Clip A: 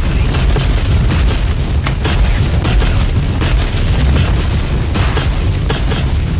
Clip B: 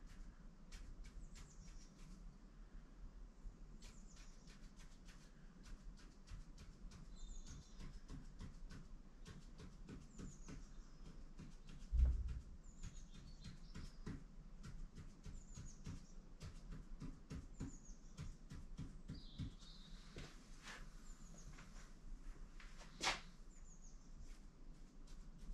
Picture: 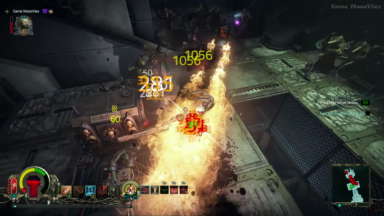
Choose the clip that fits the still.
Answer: A